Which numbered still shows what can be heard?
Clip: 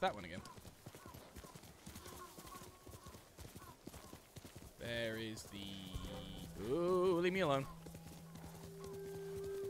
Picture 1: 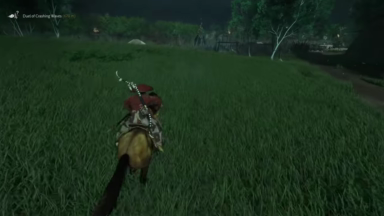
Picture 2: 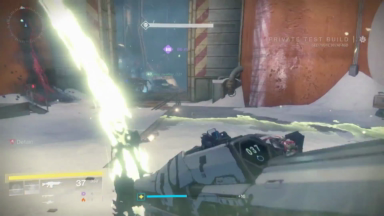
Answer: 1